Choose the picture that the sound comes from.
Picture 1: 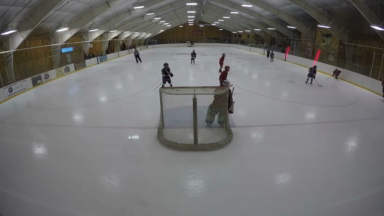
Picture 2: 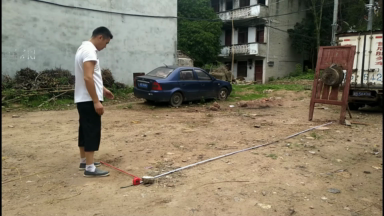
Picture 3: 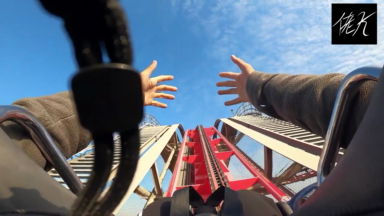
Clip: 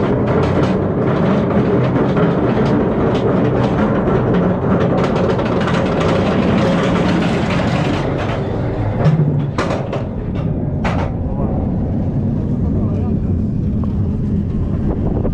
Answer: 3